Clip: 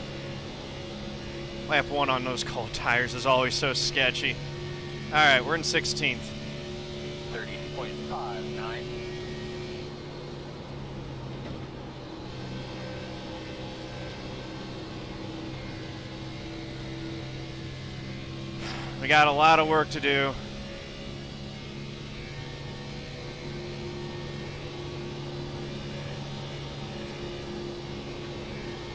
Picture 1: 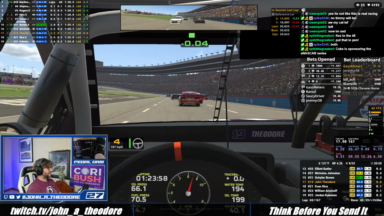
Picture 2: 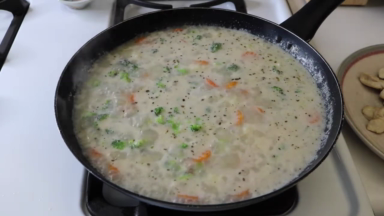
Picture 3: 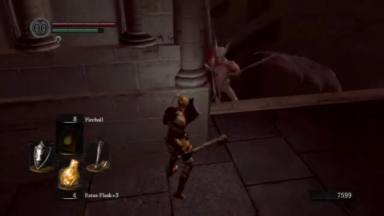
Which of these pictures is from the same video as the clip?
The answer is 1